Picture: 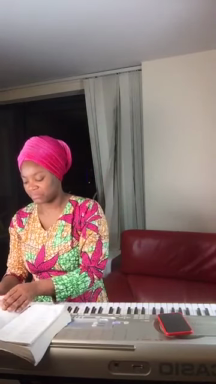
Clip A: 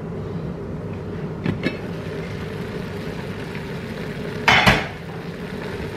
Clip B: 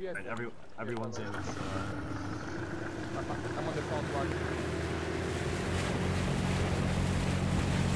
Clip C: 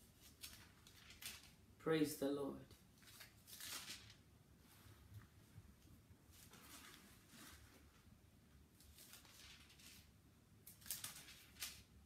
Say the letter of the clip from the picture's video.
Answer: C